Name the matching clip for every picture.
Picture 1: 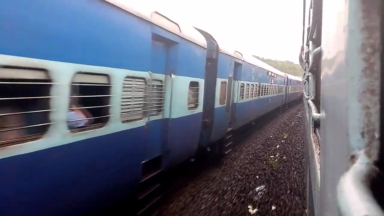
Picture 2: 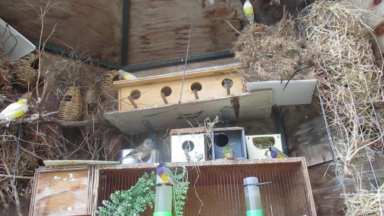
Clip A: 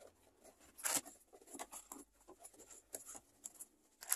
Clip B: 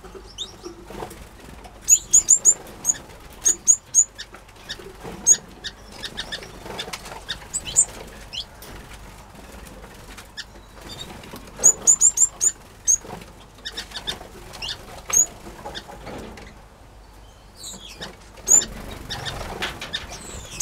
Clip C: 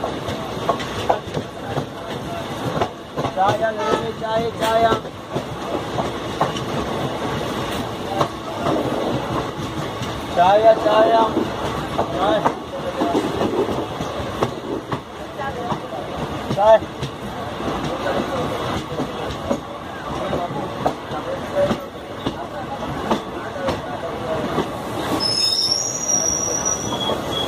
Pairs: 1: C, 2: B